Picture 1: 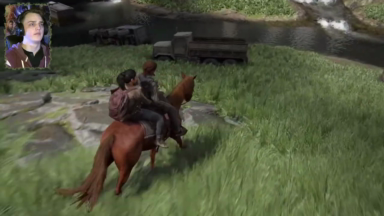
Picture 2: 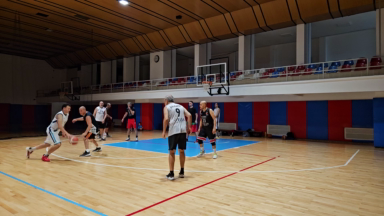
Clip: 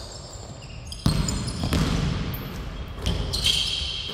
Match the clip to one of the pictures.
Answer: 2